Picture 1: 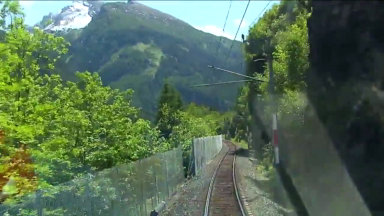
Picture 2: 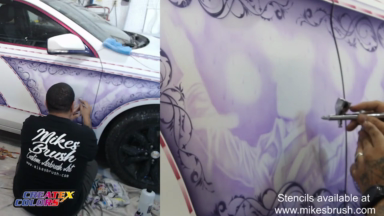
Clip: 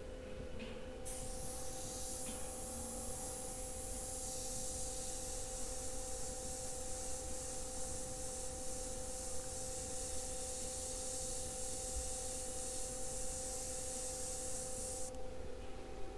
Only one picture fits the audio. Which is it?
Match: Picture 2